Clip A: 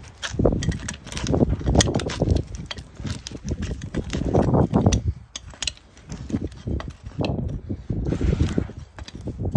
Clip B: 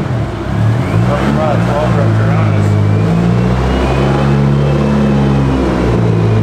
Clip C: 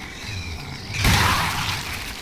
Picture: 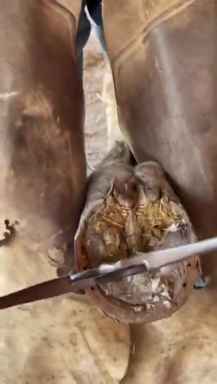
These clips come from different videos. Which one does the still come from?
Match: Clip A